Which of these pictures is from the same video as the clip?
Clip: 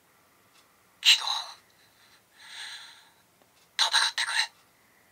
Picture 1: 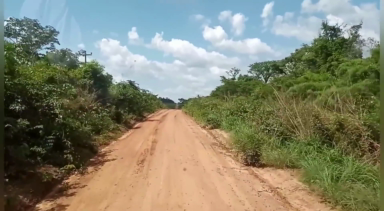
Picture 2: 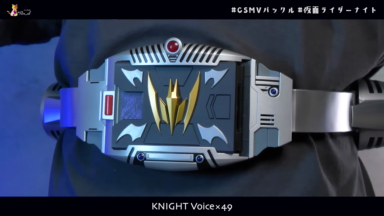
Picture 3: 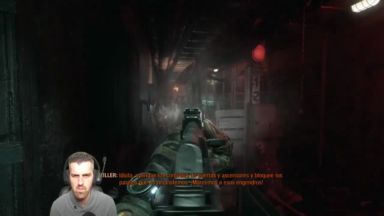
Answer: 2